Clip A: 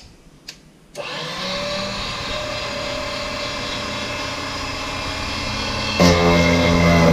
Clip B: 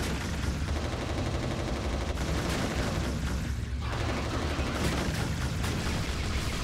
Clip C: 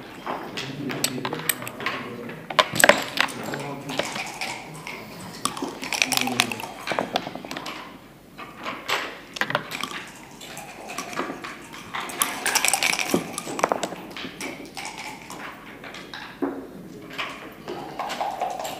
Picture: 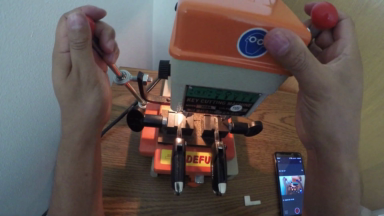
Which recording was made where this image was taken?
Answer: A